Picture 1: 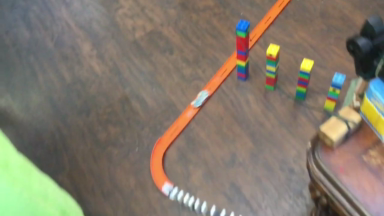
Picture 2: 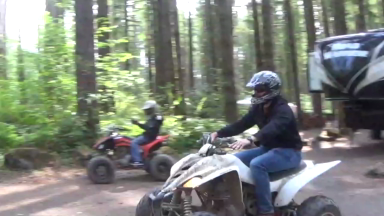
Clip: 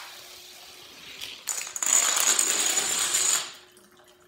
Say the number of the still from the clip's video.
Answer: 1